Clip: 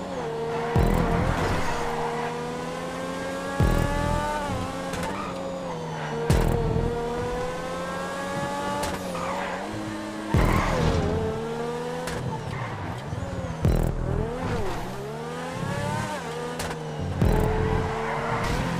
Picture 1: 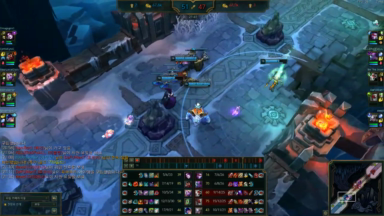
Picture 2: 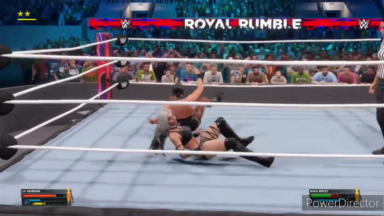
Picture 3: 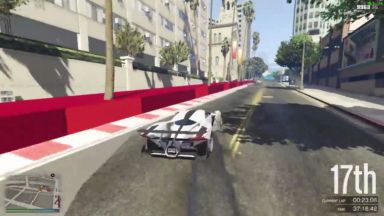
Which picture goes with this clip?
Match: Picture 3